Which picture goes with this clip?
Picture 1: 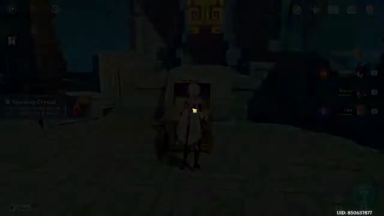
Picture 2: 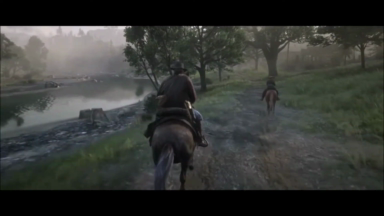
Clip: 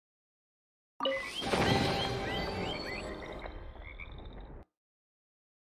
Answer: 1